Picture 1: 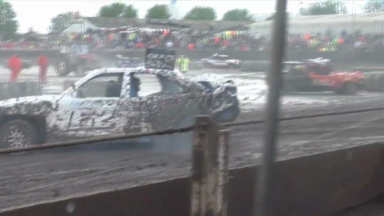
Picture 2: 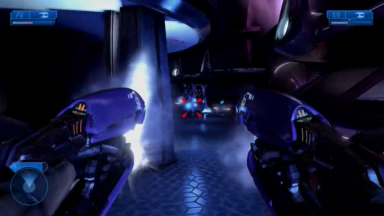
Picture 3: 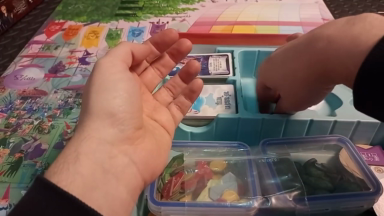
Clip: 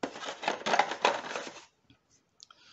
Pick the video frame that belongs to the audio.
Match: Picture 3